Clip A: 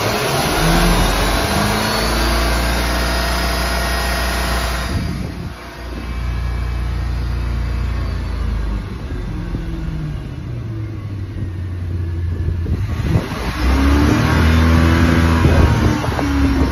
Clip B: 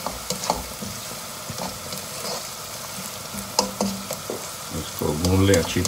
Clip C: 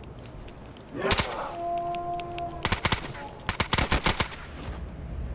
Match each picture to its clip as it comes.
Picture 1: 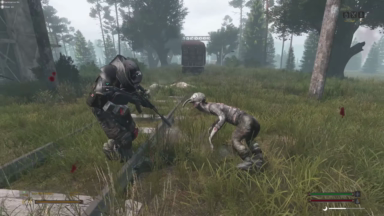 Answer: C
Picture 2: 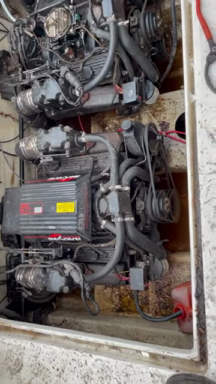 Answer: A